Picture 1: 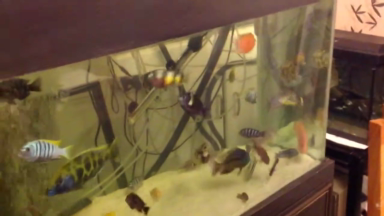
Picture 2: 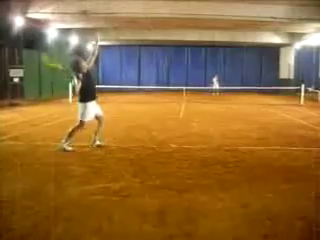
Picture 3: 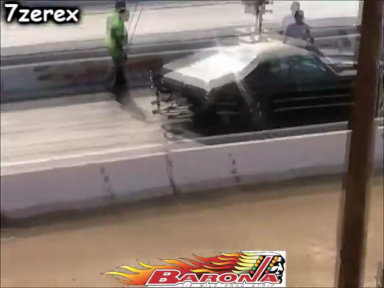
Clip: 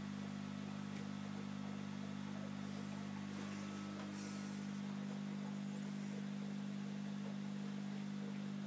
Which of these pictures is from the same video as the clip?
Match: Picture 1